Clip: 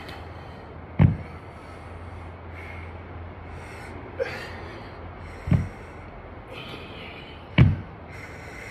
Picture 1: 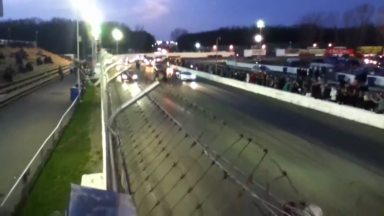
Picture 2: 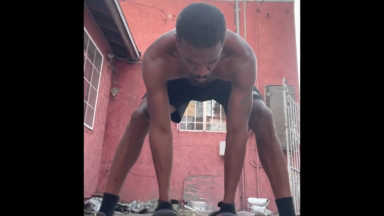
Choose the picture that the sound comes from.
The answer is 2